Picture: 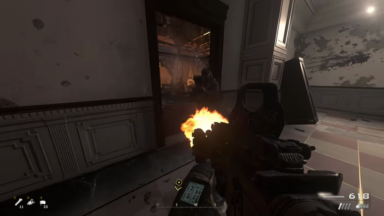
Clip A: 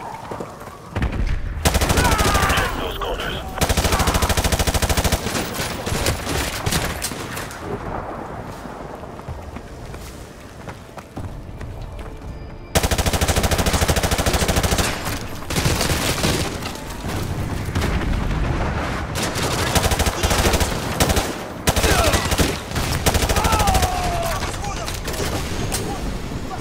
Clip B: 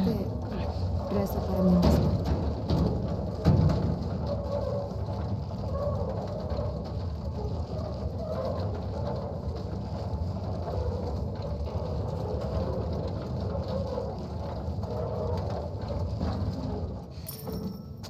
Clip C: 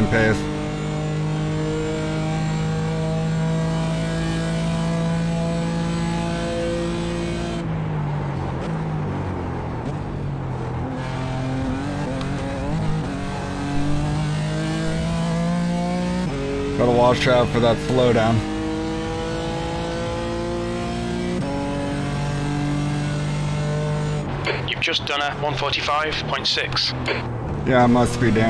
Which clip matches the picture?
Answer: A